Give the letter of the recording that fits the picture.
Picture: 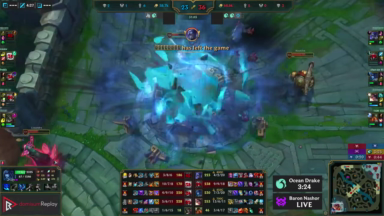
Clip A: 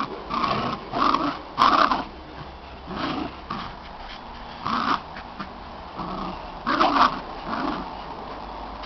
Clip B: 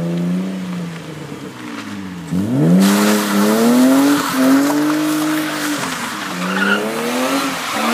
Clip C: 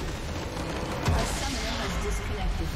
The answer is C